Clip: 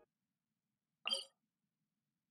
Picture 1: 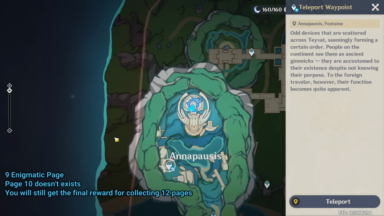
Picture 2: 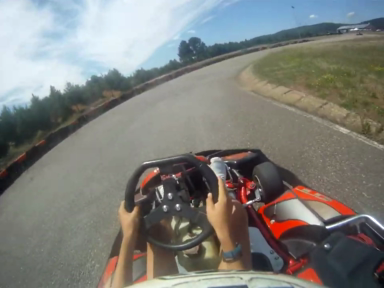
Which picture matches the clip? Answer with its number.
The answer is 1